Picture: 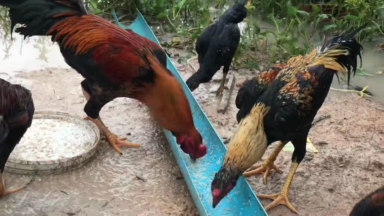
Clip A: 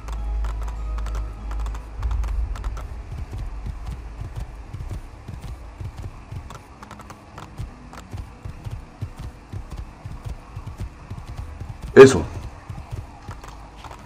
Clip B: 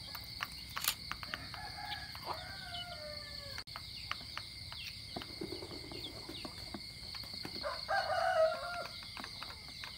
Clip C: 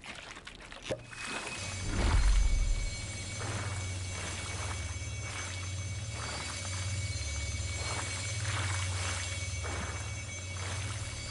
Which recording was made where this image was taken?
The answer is B